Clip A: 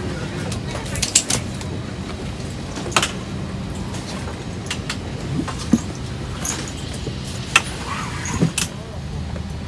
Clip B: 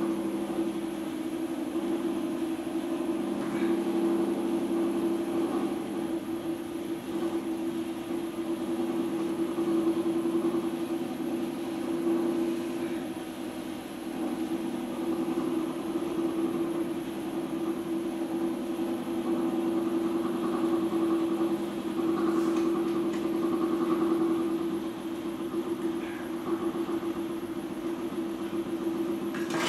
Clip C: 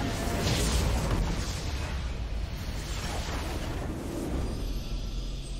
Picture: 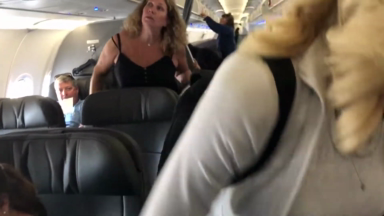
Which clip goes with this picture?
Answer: A